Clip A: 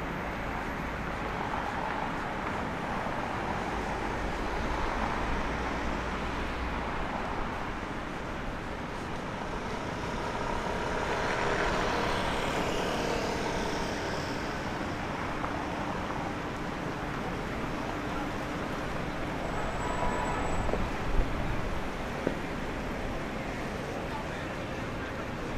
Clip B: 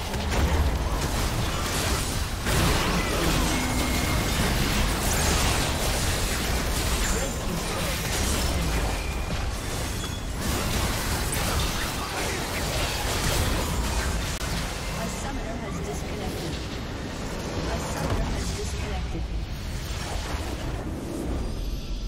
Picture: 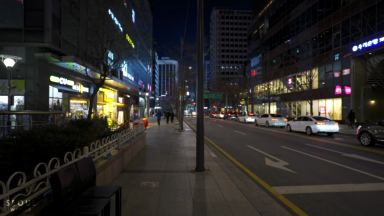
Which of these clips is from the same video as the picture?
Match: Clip A